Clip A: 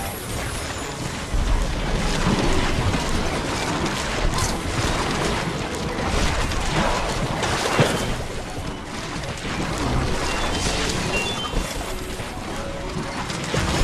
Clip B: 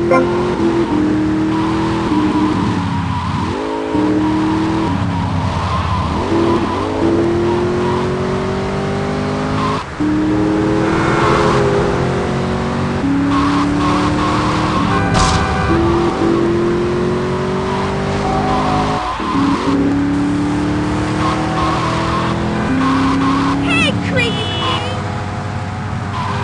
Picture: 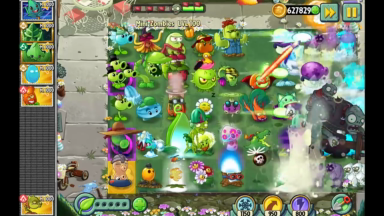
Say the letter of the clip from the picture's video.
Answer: A